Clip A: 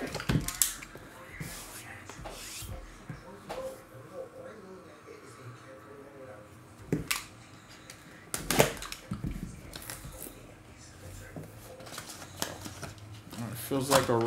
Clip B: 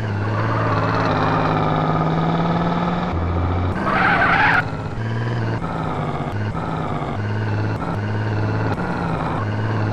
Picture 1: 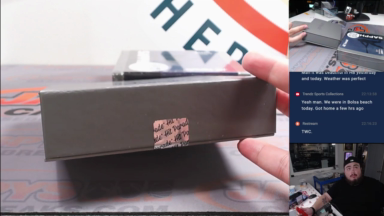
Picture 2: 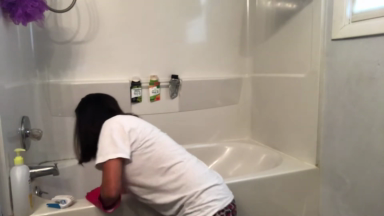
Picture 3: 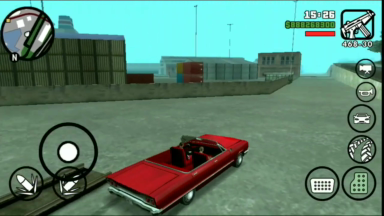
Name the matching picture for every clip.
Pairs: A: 1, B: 3